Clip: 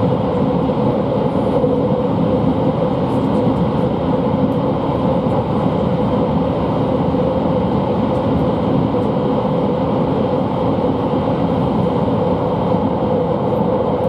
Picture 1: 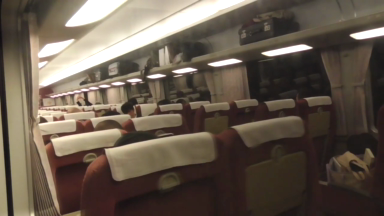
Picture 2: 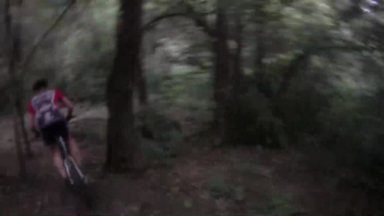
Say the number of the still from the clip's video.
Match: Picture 1